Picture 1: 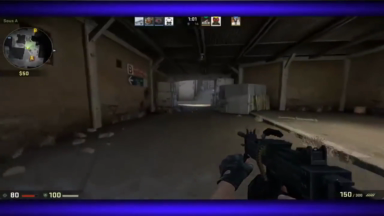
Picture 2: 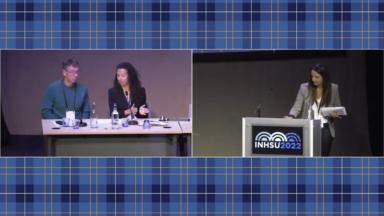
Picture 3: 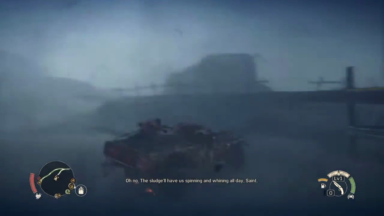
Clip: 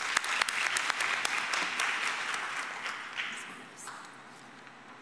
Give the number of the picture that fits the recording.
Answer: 2